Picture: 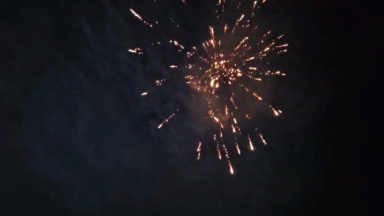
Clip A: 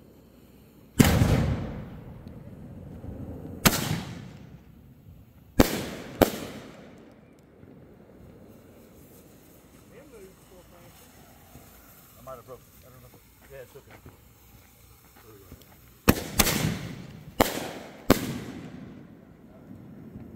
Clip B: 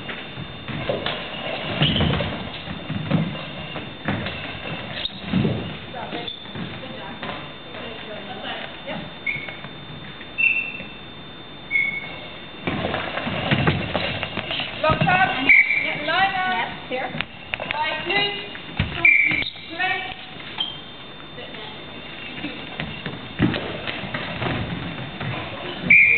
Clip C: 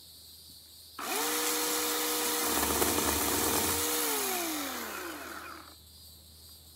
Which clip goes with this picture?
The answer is A